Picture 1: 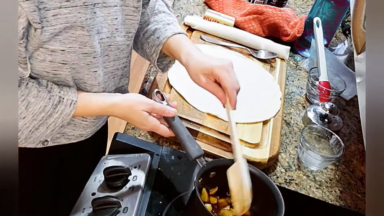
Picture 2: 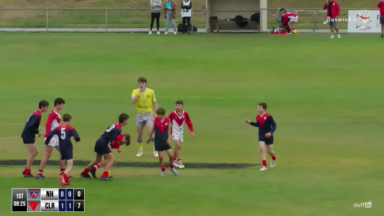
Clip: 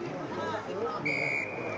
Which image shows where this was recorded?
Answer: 2